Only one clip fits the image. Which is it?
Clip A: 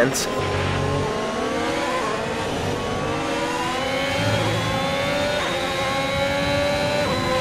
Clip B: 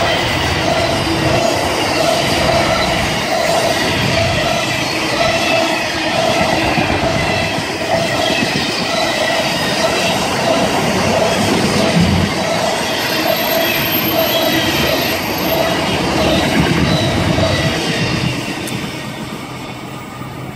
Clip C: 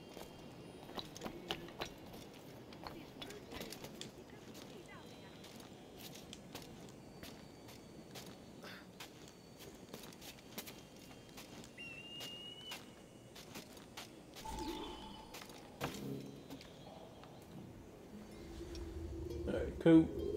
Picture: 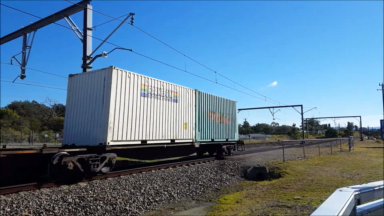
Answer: B